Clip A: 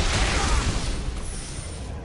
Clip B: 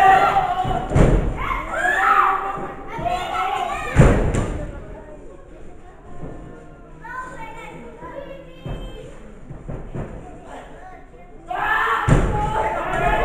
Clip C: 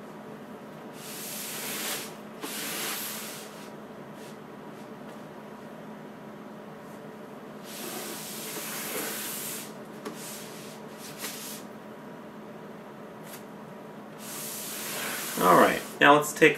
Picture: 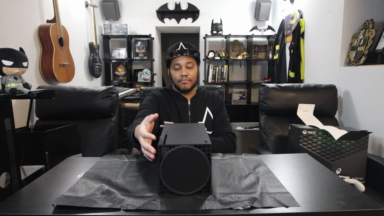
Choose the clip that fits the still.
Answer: C